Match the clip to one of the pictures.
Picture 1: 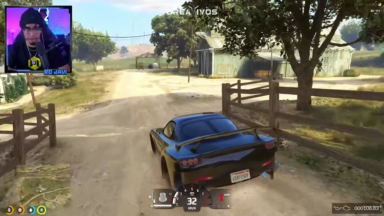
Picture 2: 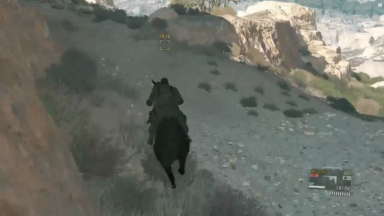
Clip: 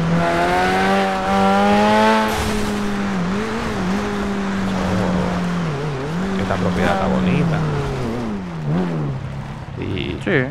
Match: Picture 1